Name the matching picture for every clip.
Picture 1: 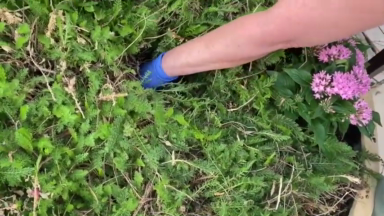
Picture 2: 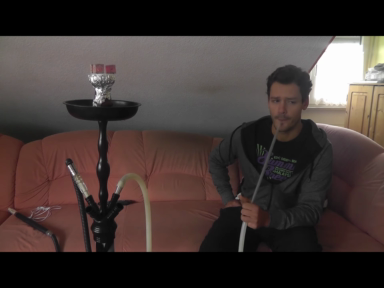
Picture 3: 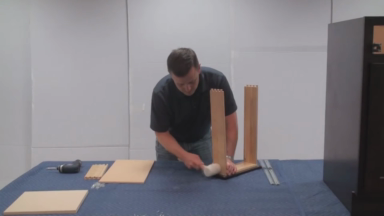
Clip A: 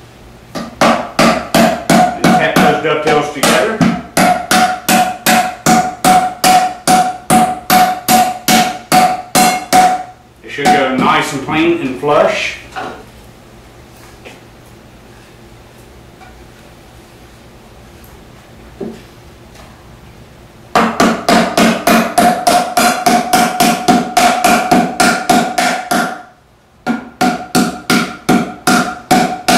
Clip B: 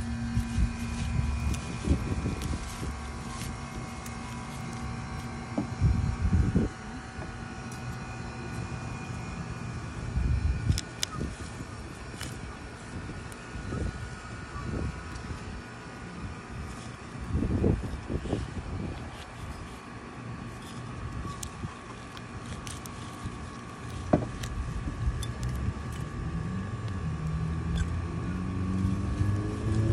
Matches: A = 3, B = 1